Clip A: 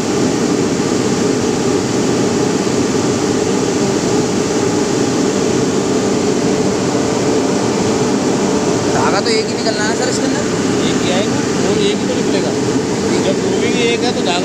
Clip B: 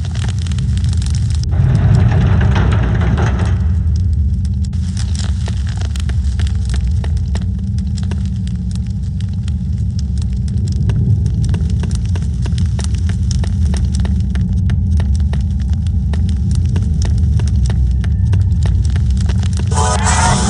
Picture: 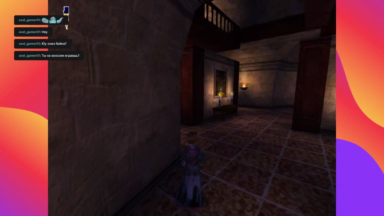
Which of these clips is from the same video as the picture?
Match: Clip B